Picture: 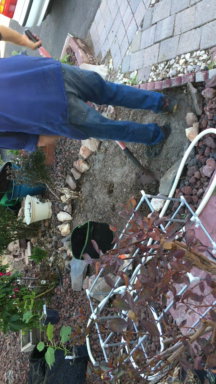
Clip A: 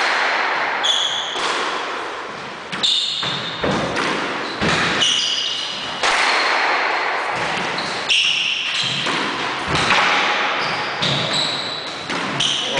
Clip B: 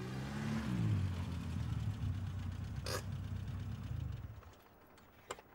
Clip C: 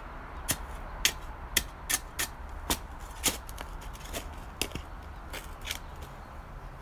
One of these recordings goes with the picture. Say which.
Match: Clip C